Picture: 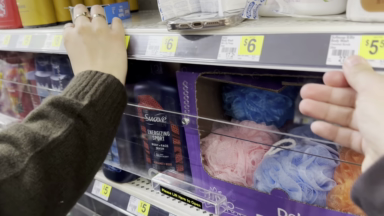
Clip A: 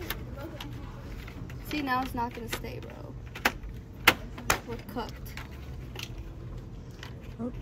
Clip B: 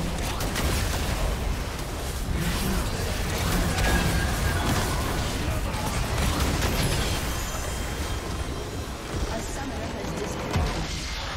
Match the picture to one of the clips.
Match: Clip A